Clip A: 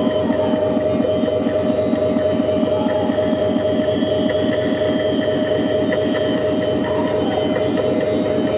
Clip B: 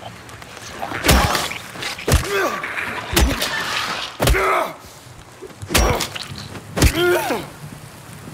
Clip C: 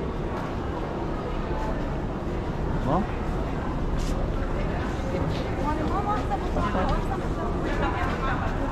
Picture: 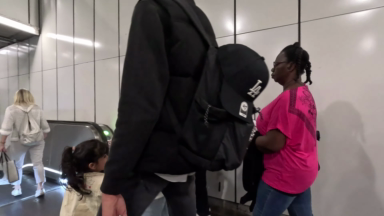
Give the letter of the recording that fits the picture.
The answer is C